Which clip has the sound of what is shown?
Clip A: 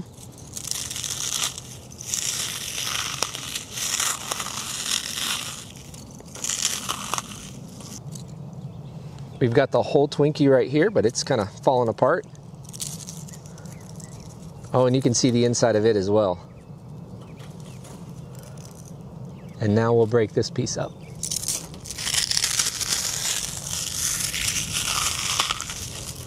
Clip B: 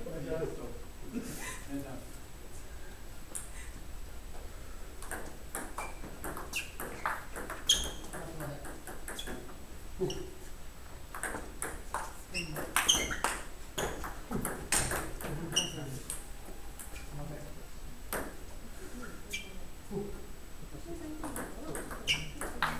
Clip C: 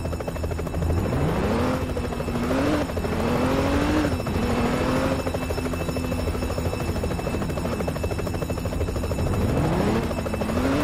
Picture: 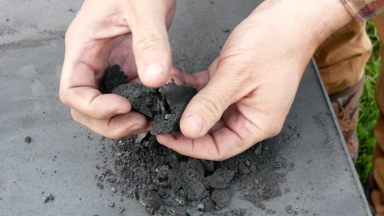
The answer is A